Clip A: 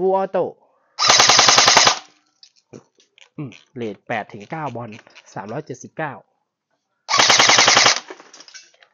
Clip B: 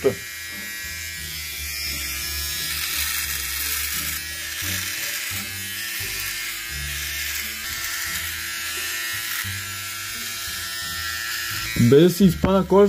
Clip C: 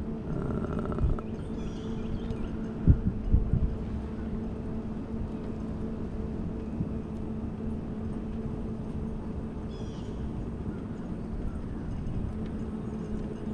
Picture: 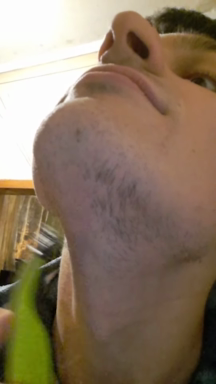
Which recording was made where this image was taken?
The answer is B